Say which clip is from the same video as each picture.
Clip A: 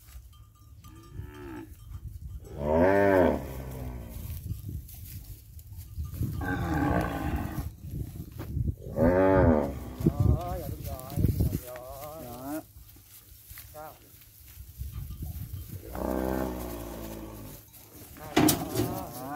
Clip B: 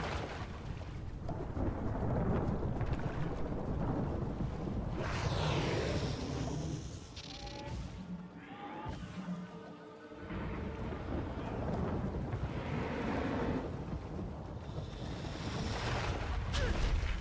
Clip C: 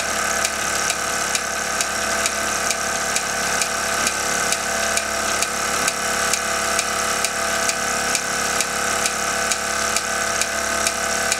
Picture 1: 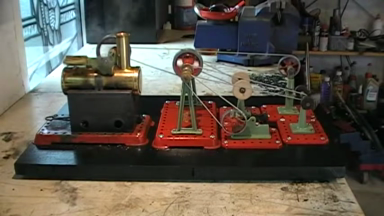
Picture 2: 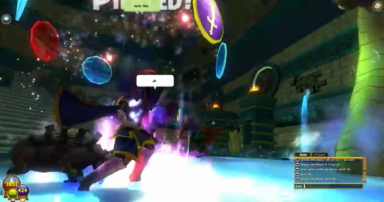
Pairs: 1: C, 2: B